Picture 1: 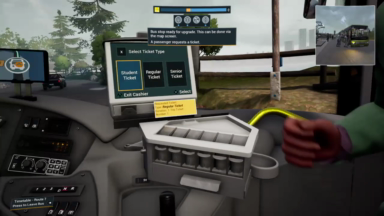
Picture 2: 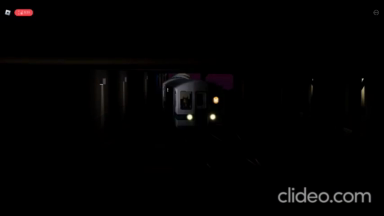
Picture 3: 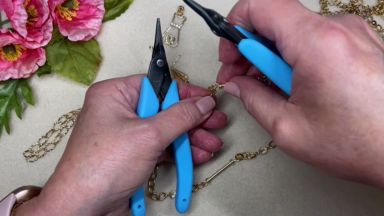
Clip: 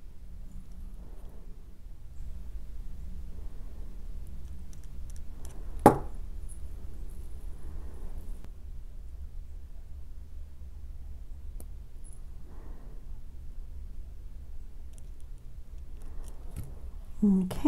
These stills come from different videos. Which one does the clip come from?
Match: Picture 3